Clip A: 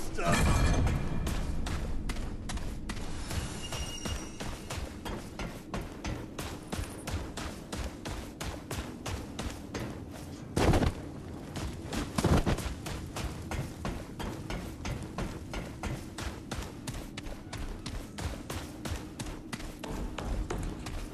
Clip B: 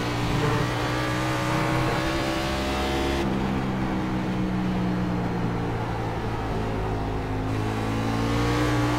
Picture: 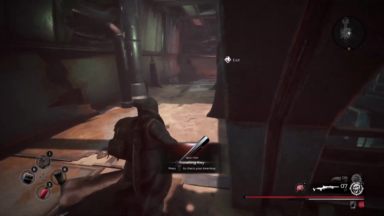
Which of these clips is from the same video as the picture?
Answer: A